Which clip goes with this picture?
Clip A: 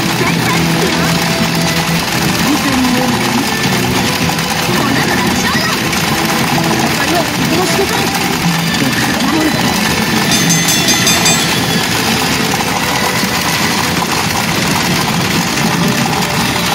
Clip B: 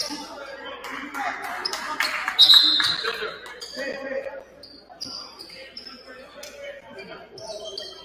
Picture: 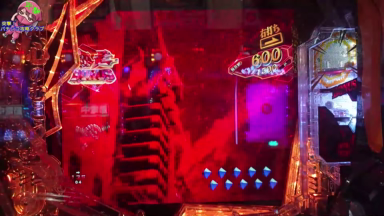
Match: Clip A